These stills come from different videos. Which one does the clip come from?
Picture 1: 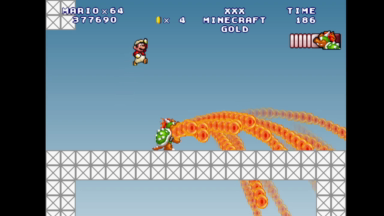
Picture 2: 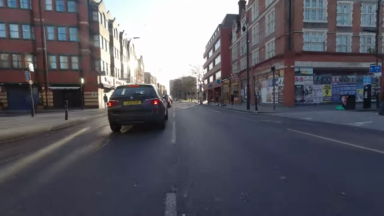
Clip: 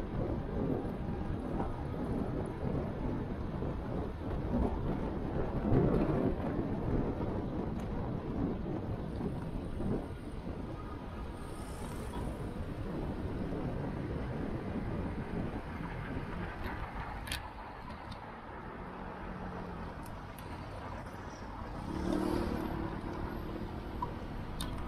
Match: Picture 2